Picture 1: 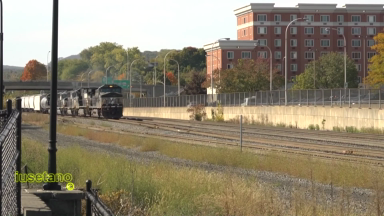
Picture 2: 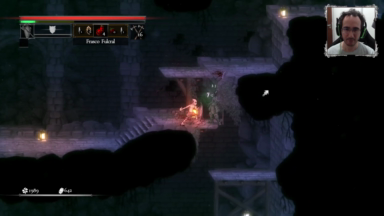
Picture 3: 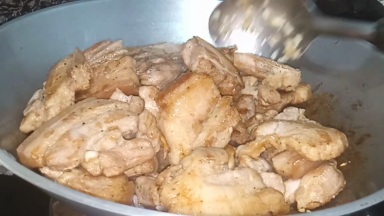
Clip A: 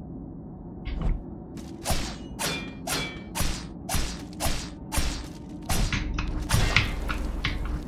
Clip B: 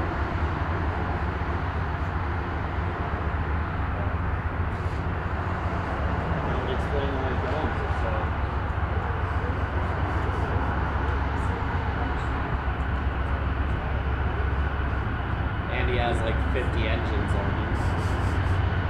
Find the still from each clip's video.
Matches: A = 2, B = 1